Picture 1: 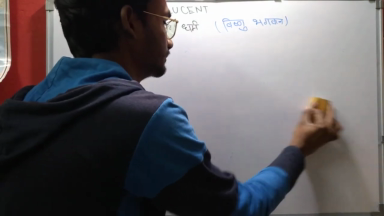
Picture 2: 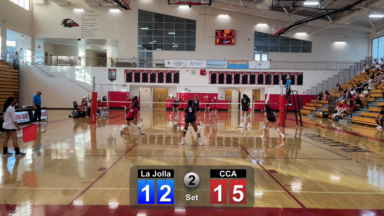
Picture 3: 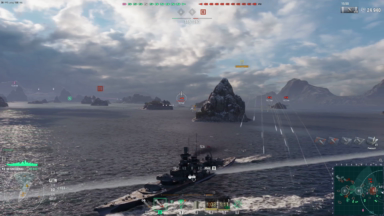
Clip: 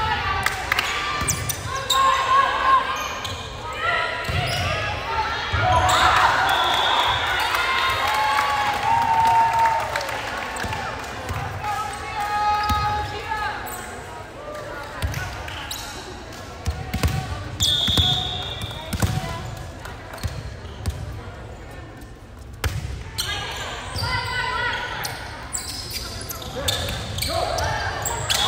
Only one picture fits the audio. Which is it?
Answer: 2